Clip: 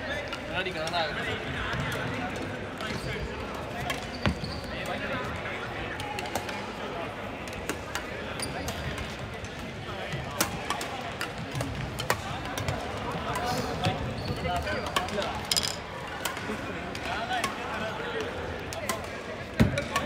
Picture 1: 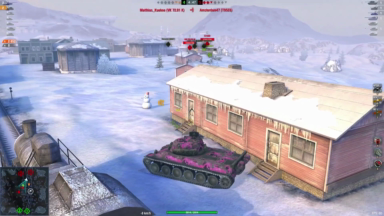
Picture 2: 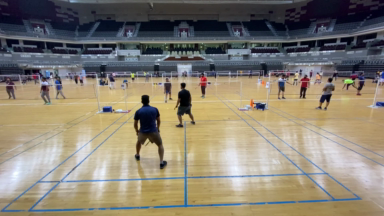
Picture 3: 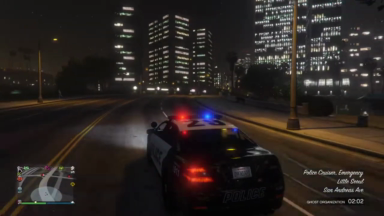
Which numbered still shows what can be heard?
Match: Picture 2